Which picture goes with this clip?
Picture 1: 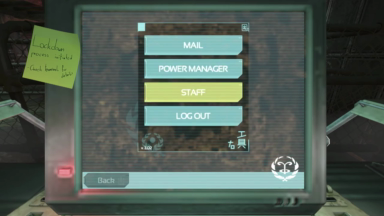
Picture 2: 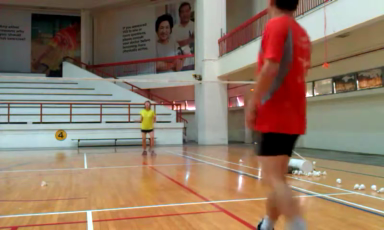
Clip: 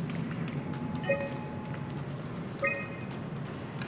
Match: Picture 1